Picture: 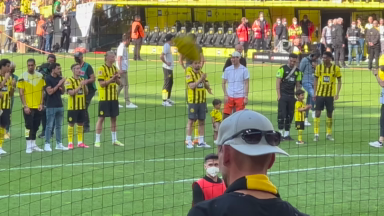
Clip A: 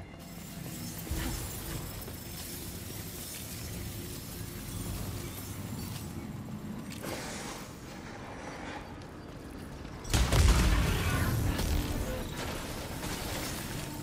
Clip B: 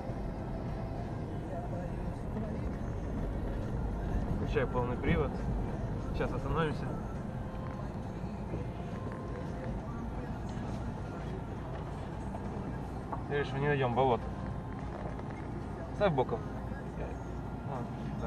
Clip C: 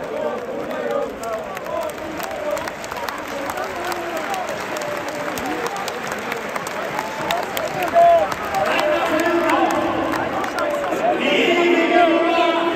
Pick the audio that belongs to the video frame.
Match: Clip C